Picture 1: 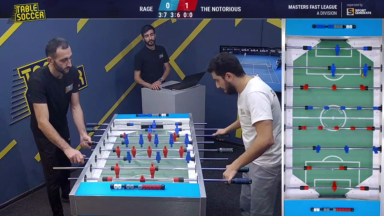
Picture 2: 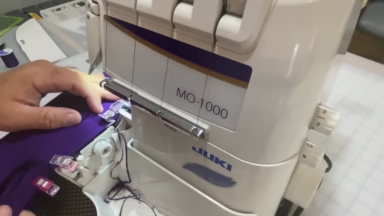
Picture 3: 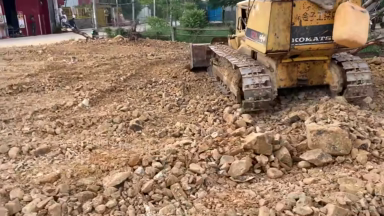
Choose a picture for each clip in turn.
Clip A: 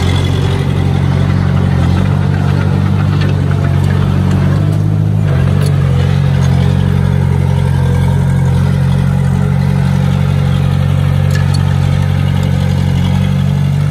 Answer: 3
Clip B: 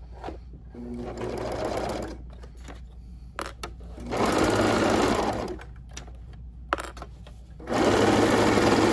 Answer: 2